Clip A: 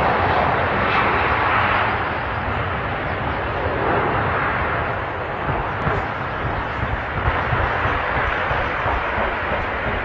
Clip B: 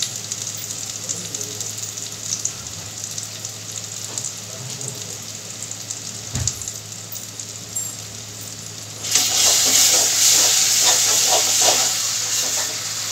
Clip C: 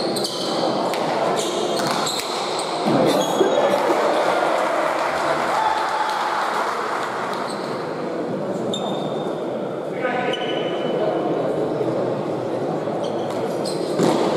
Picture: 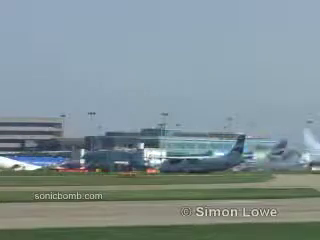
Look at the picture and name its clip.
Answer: A